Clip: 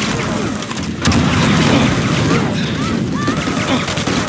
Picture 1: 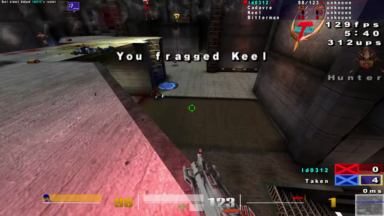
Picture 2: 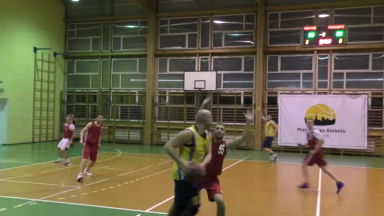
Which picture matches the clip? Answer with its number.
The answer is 1